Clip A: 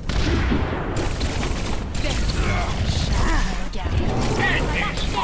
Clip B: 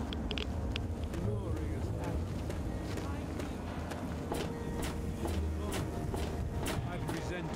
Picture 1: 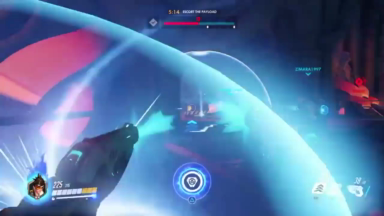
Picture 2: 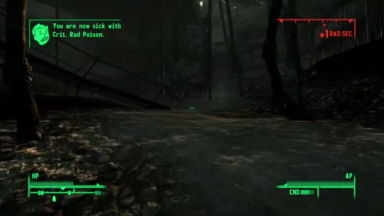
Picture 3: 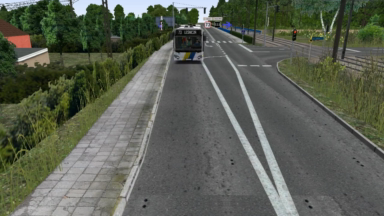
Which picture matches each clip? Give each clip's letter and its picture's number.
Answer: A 1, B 2